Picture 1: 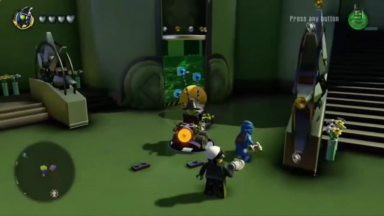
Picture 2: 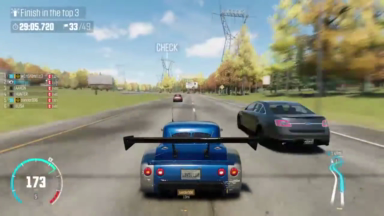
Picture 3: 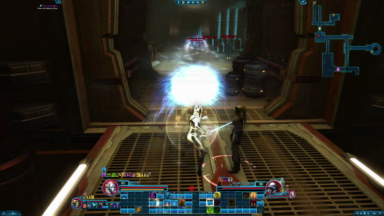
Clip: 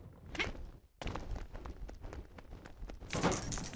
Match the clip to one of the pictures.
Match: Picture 1